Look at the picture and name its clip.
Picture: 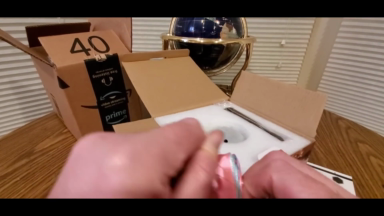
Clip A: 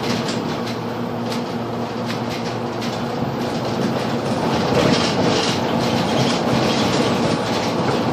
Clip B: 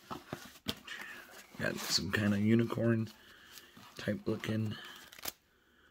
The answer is B